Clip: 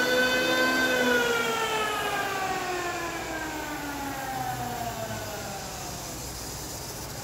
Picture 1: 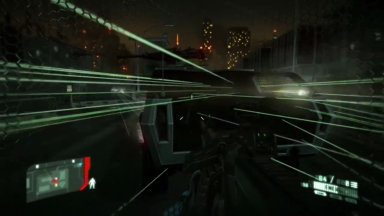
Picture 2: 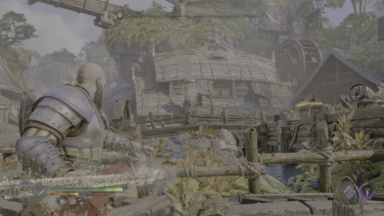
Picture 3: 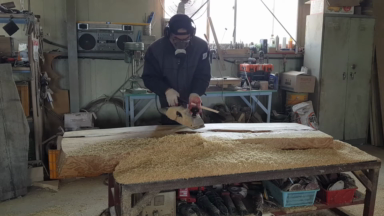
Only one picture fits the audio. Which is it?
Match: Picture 3